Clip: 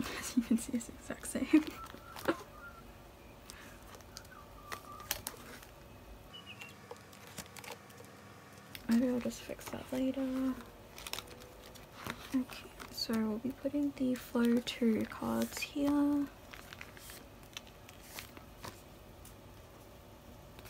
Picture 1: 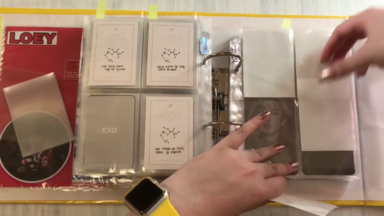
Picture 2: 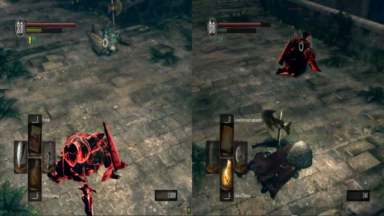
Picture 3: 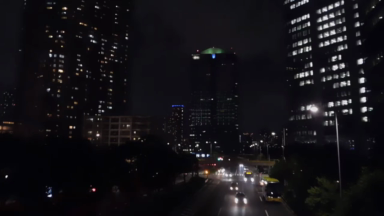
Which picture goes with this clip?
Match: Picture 1